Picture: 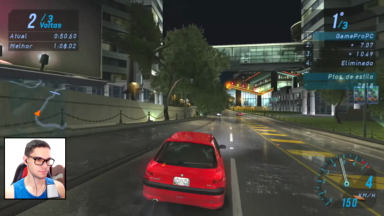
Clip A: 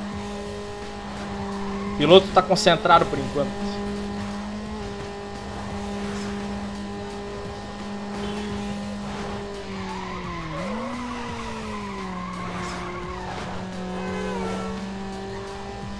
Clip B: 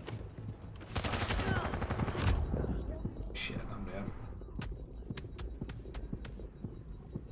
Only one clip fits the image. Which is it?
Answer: A